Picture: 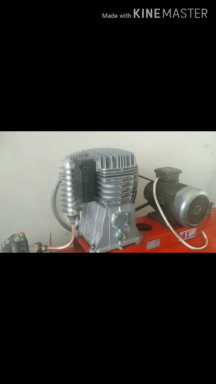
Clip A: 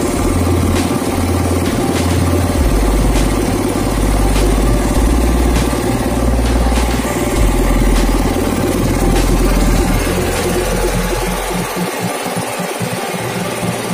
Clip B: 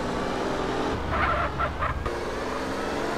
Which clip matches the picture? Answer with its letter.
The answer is A